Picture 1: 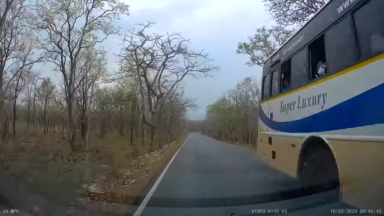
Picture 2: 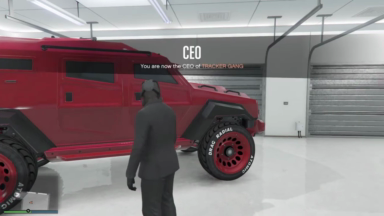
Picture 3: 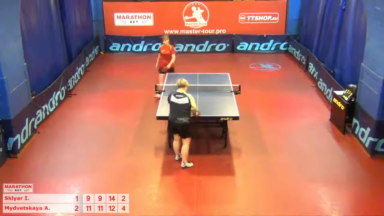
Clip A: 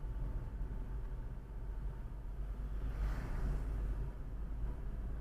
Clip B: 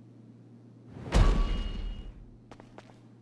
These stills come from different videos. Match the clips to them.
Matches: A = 1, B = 2